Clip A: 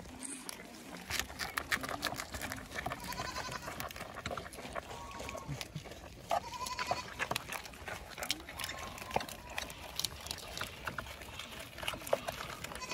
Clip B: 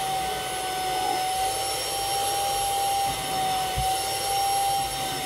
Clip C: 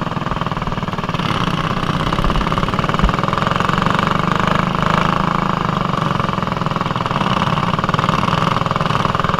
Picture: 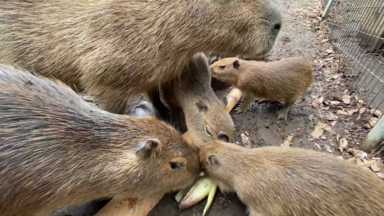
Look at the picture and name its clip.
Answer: A